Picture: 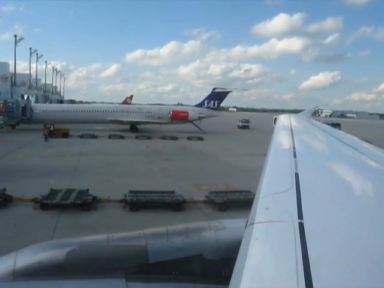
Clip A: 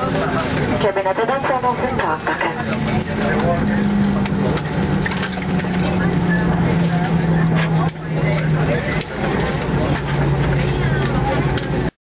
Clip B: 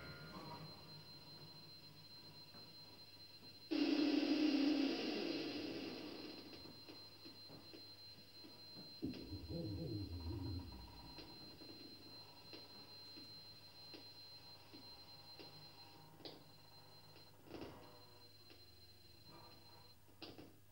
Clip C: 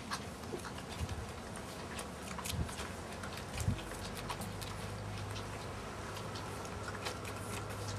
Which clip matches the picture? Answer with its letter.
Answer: A